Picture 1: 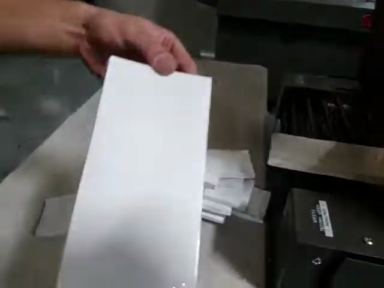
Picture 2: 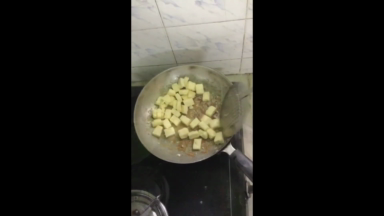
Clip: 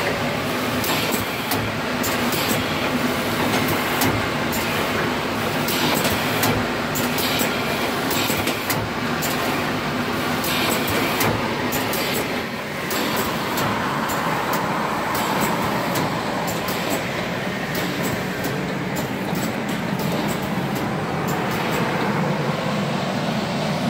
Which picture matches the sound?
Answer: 1